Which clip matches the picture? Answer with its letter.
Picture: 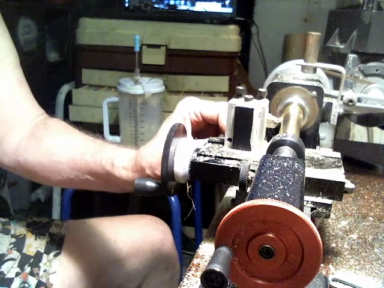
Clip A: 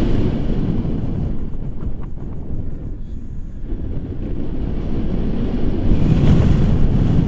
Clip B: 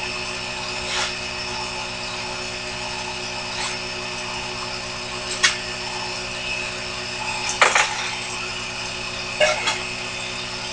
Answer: B